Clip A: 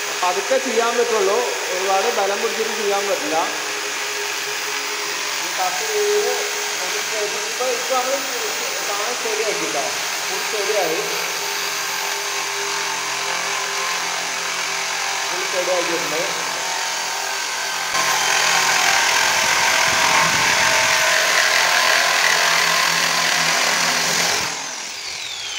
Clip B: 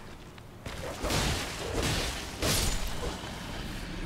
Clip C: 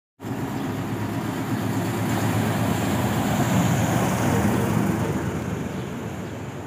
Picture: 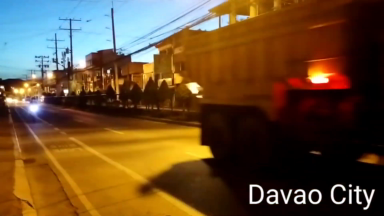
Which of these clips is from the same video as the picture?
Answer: C